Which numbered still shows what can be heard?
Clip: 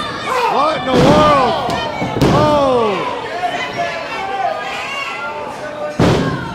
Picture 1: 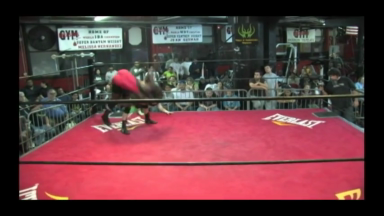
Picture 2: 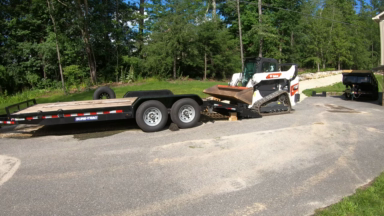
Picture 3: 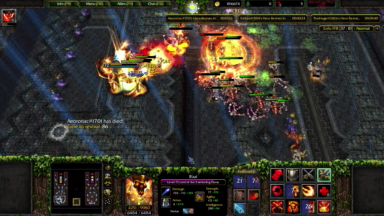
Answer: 1